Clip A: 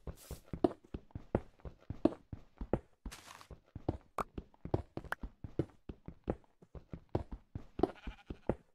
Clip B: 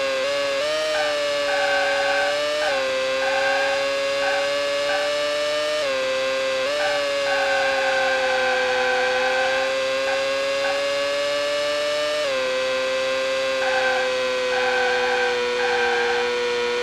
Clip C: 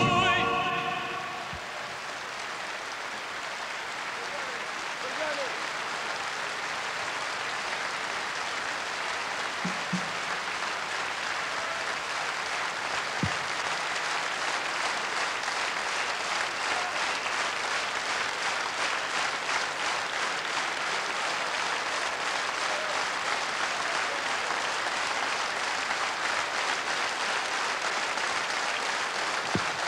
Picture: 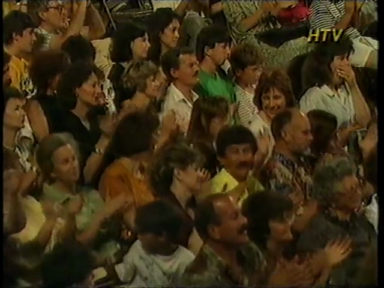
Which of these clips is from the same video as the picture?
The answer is C